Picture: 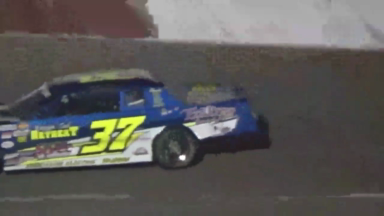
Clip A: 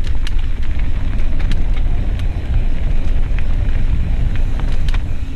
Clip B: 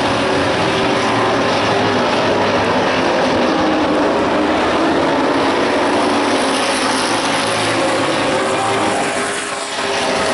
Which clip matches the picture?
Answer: B